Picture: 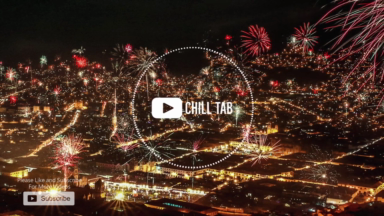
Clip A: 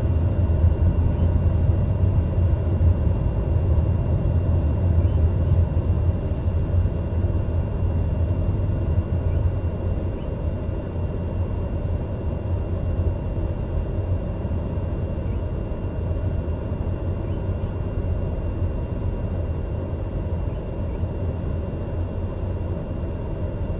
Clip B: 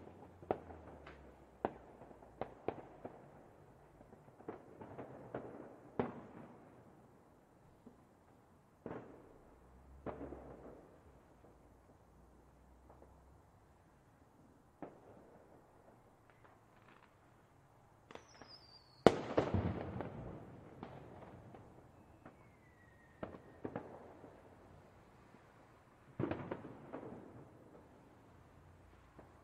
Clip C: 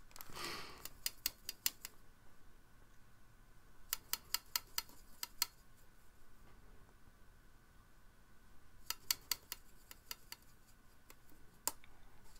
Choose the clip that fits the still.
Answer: B